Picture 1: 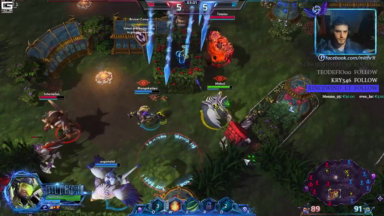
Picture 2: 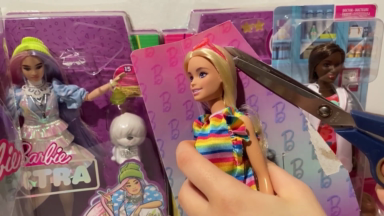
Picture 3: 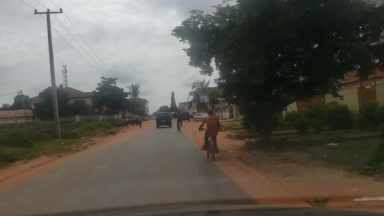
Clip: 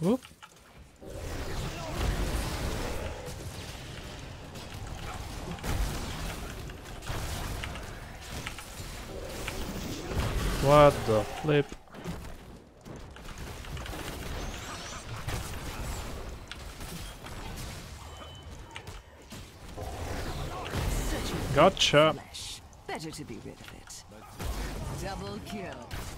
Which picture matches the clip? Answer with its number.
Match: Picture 1